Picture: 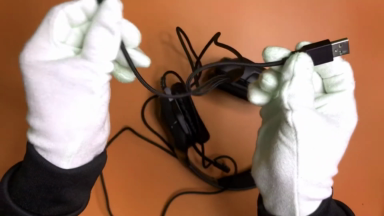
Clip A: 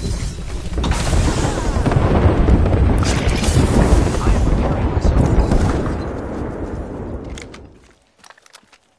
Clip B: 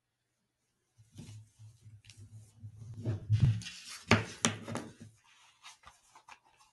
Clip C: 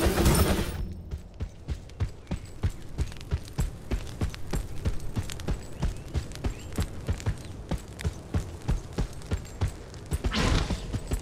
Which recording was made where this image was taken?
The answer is B